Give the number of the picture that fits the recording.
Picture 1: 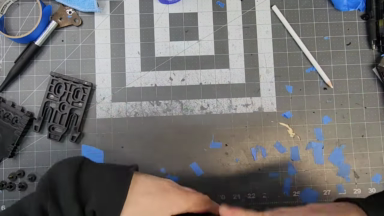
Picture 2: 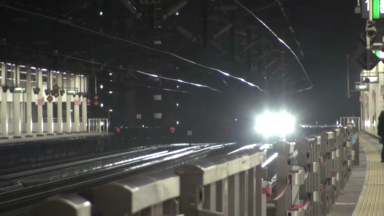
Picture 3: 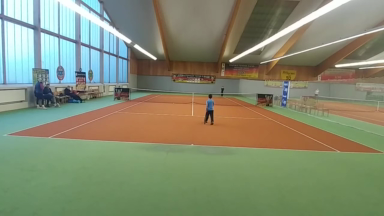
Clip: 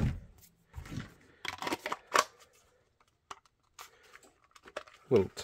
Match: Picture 1